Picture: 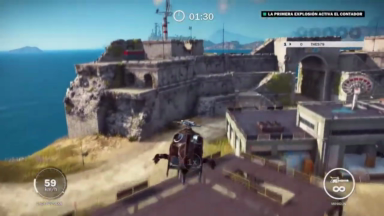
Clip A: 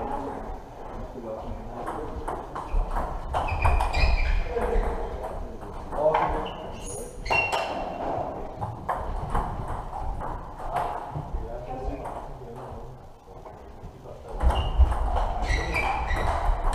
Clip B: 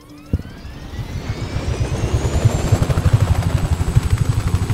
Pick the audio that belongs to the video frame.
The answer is B